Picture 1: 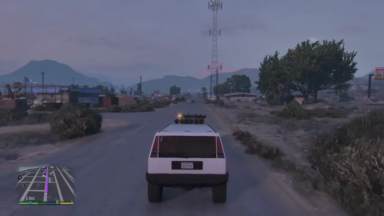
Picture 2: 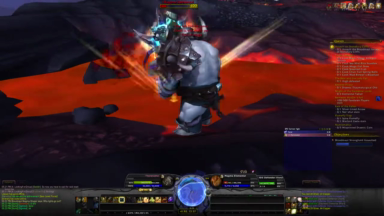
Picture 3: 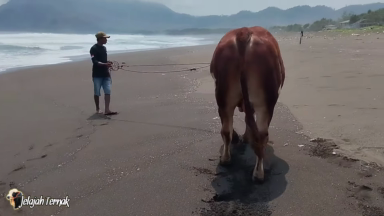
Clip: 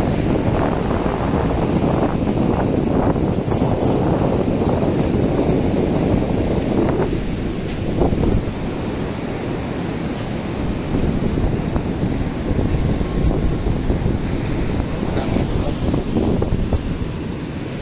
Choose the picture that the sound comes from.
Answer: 3